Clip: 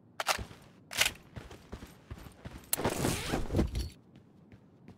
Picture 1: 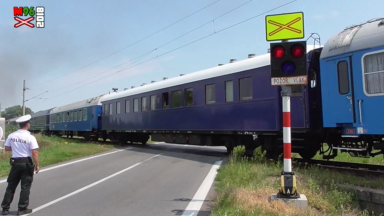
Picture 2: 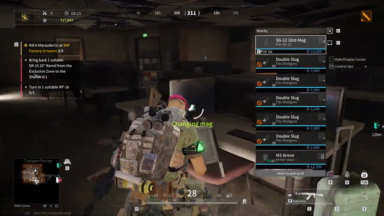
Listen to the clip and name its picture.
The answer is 2